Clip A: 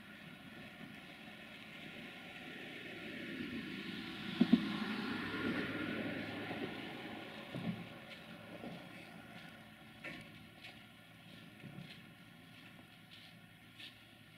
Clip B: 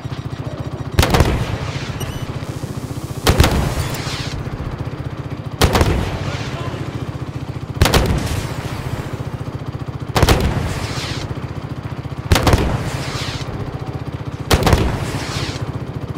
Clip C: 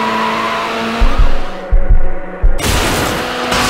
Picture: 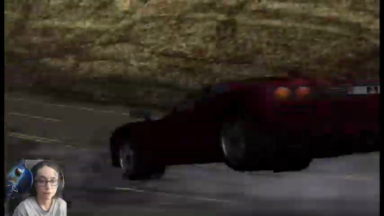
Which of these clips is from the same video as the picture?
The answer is C